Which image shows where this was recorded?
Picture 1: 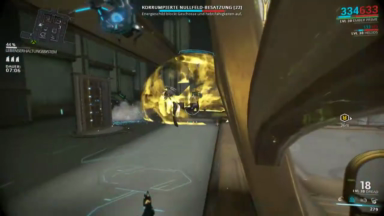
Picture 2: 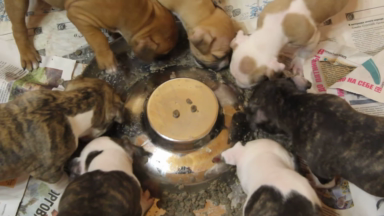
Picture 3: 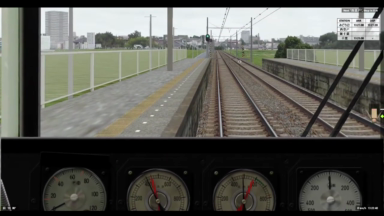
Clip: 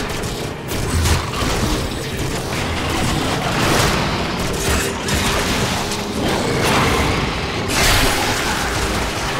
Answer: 1